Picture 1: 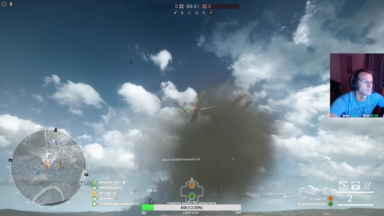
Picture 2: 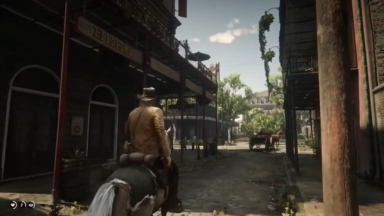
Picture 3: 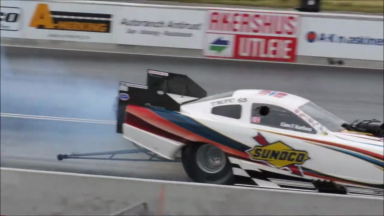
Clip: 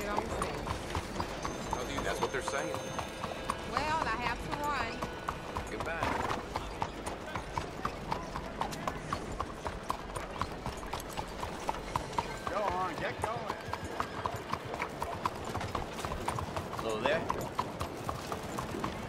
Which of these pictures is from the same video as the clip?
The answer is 2